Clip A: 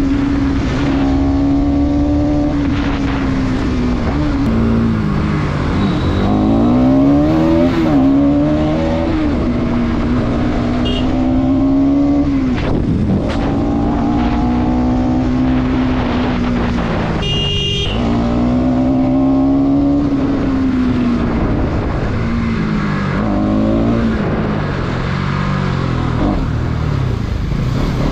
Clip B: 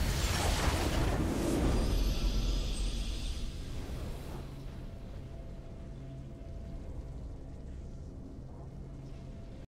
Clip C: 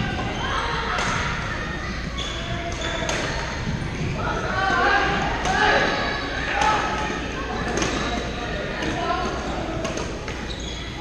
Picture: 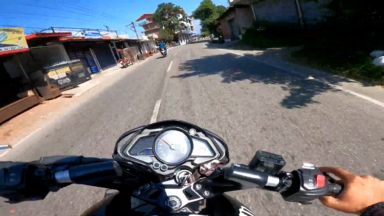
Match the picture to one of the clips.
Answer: A